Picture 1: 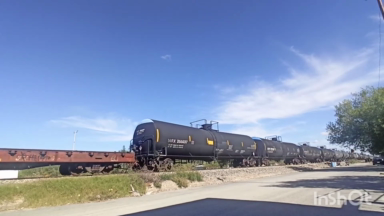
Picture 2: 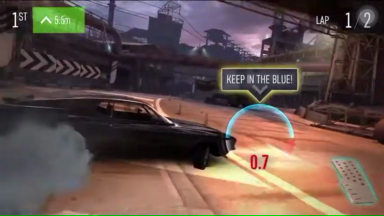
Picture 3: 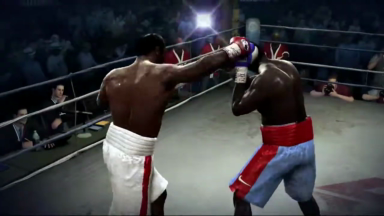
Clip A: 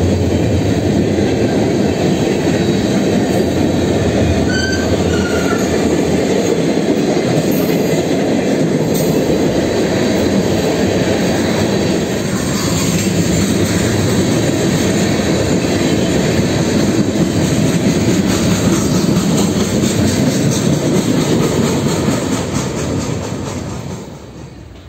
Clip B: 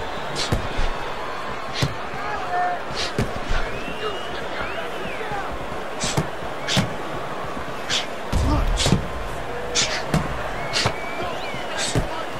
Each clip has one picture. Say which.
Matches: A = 1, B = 3